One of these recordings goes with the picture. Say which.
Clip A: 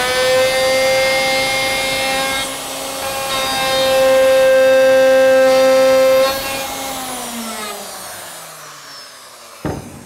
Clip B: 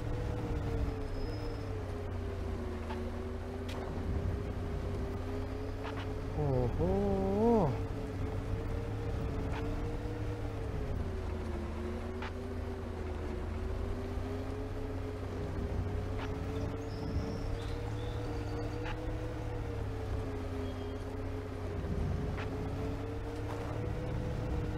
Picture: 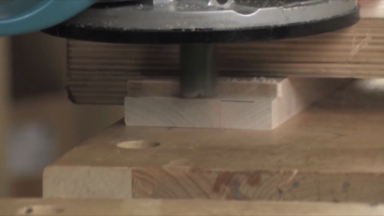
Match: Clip A